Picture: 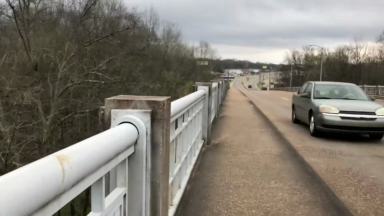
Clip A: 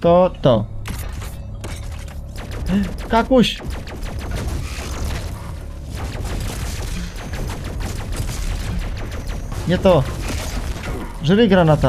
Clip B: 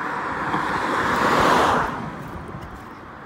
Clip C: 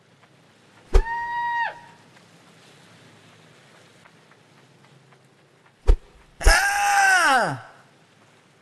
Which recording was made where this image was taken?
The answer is B